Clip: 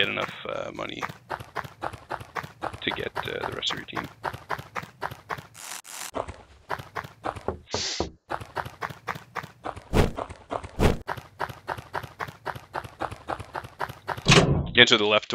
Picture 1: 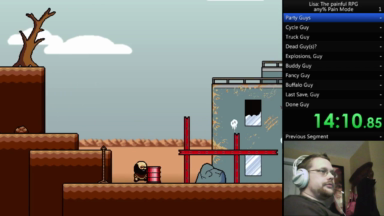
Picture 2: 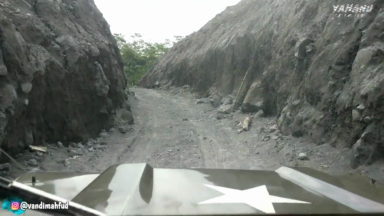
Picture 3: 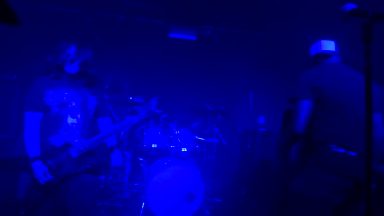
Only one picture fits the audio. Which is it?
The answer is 1